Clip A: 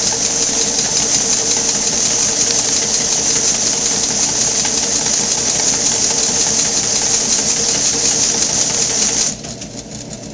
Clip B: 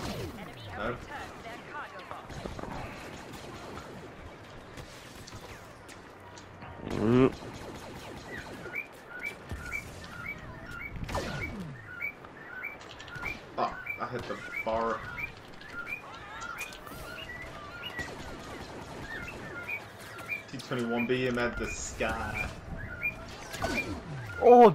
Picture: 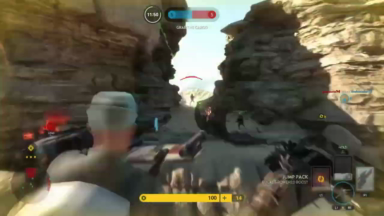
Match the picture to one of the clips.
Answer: B